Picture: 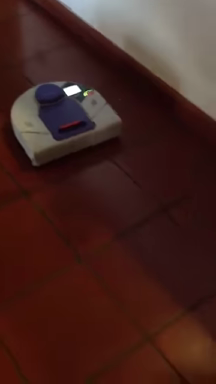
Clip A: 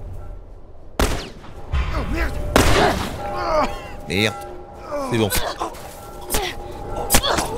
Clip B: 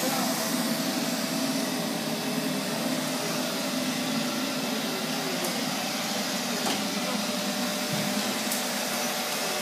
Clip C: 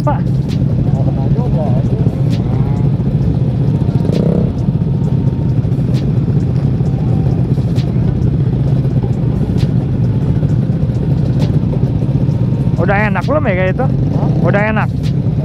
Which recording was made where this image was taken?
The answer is B